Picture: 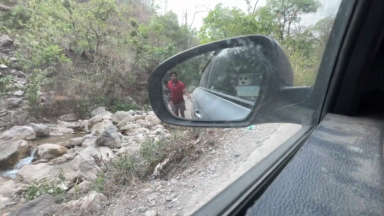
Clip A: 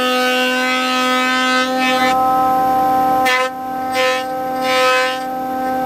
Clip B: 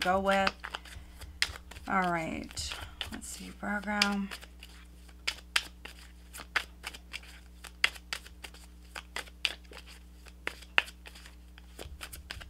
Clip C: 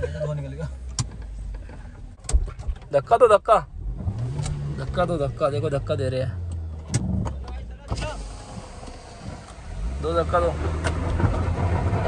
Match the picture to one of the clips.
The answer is C